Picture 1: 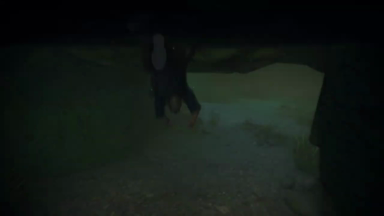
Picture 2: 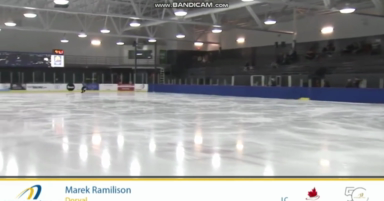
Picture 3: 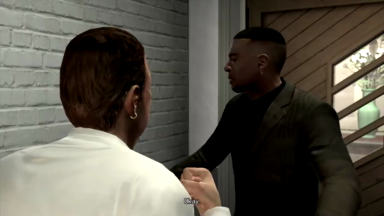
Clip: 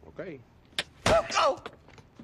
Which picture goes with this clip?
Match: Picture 3